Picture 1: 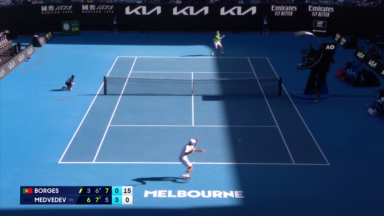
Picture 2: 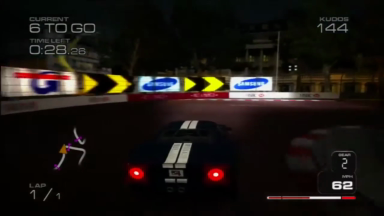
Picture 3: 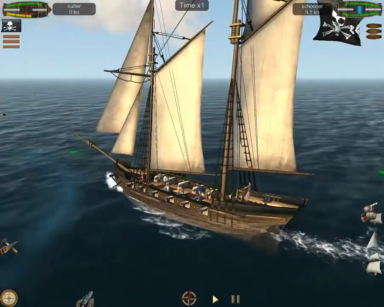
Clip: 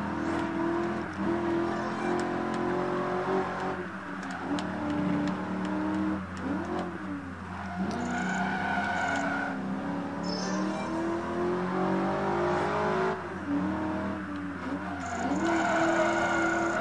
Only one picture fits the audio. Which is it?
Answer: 2